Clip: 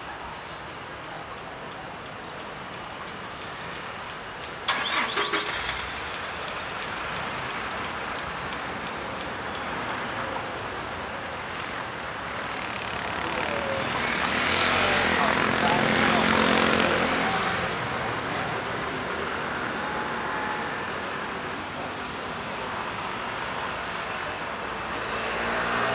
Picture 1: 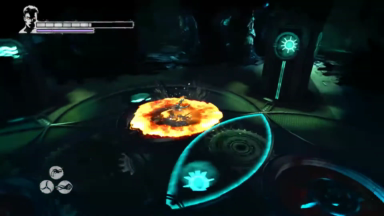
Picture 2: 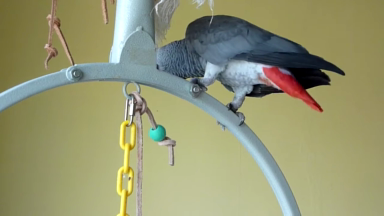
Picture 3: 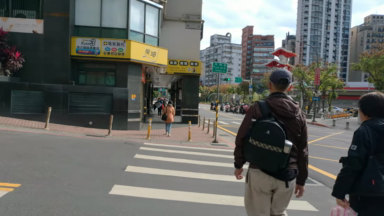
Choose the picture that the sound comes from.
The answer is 3